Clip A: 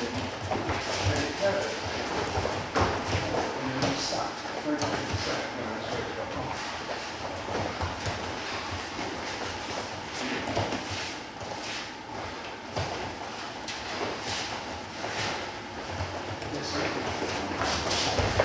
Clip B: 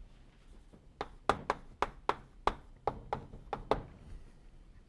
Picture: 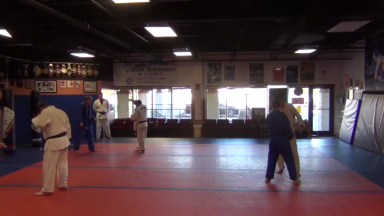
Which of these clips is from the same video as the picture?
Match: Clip A